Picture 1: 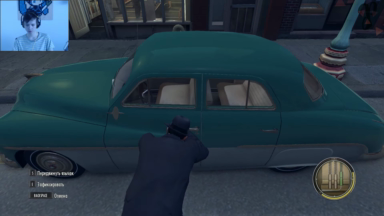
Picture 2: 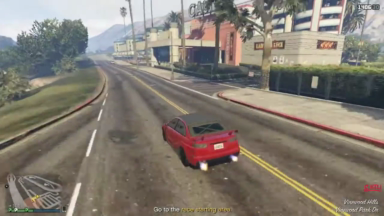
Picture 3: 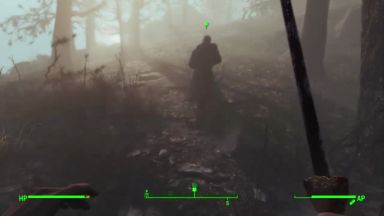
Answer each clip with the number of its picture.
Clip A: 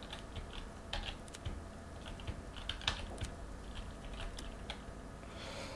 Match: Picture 1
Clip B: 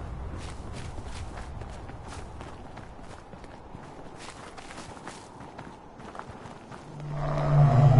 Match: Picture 3